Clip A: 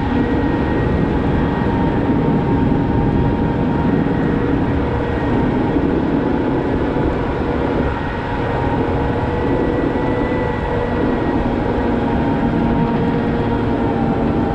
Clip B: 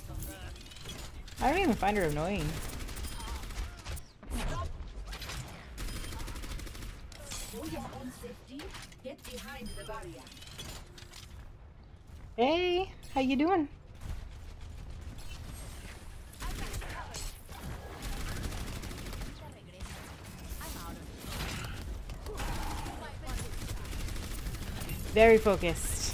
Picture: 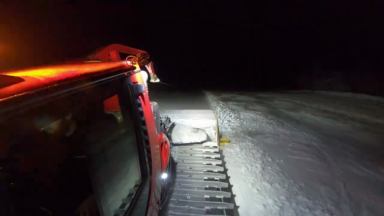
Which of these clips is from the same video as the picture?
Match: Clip A